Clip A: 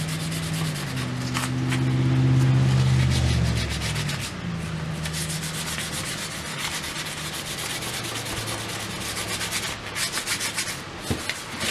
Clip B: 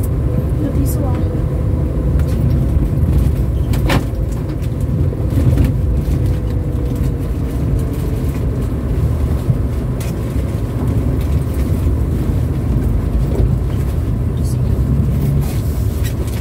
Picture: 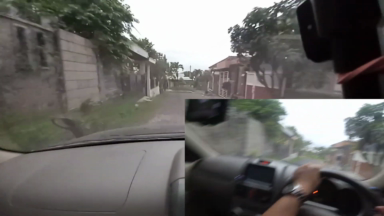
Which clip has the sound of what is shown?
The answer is B